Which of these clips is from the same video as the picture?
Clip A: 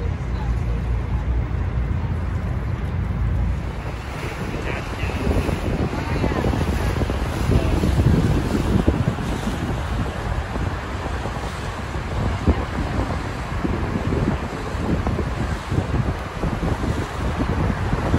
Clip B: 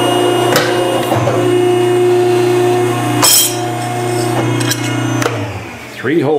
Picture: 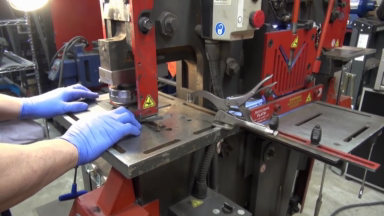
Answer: B